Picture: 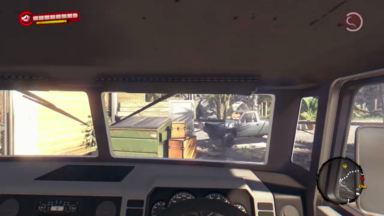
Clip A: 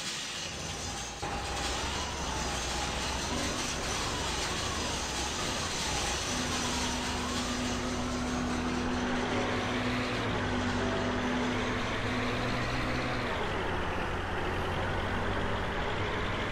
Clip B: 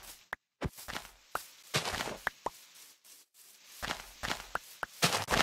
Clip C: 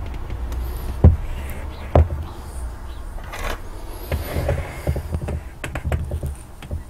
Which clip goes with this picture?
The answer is A